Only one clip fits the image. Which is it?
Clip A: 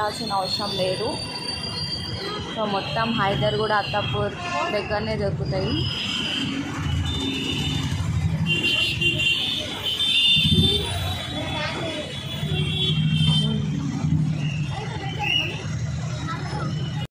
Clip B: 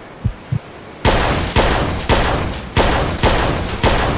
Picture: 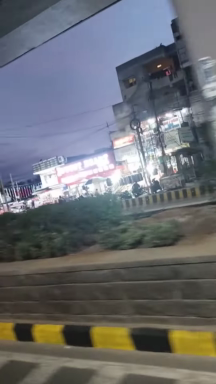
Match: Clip A